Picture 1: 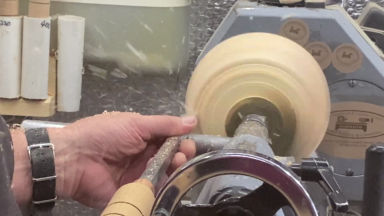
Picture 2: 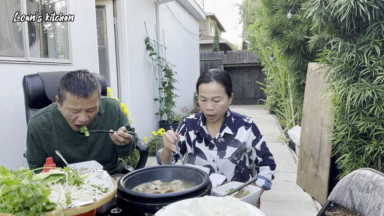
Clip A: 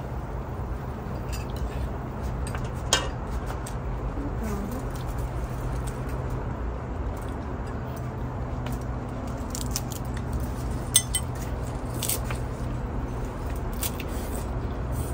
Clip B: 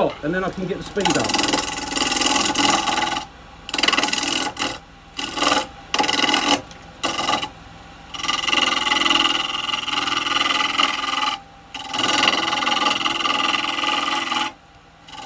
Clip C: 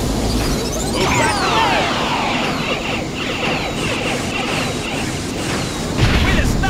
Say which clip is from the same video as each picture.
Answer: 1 B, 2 A